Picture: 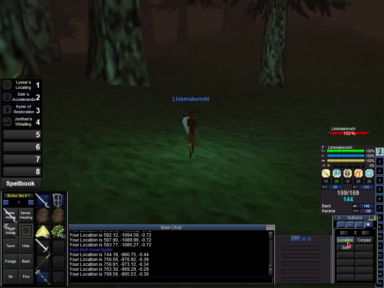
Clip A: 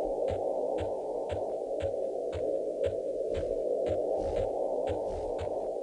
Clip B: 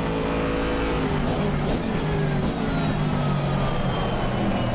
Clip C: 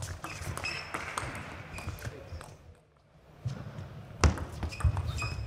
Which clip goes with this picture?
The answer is A